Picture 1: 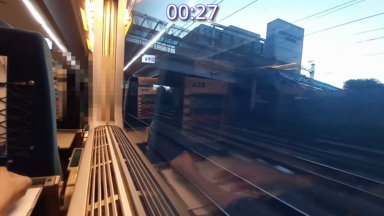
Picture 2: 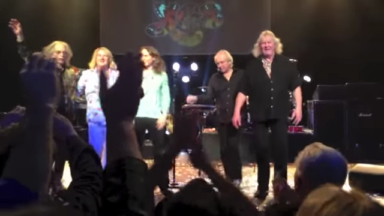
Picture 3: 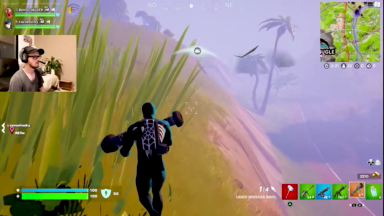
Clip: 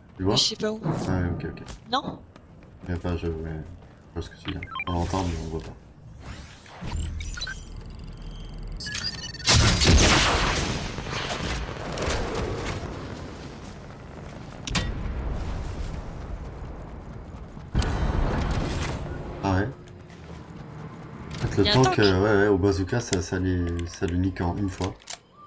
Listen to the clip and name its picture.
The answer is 3